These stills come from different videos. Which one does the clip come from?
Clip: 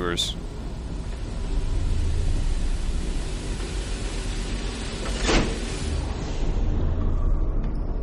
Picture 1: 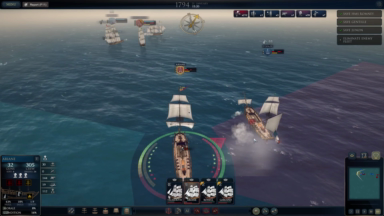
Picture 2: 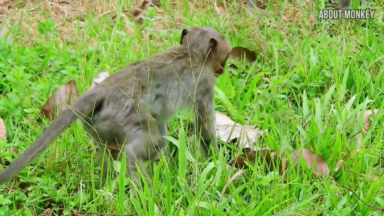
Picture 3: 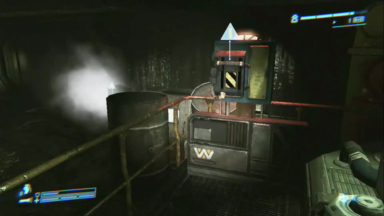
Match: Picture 3